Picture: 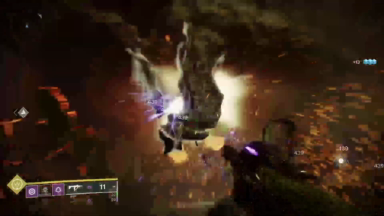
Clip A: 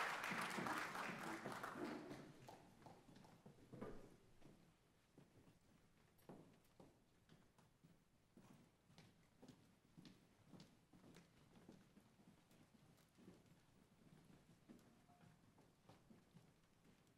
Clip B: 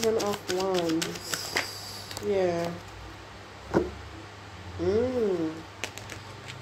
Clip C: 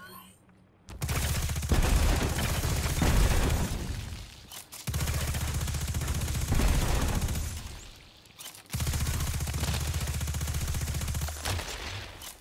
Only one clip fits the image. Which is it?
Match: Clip C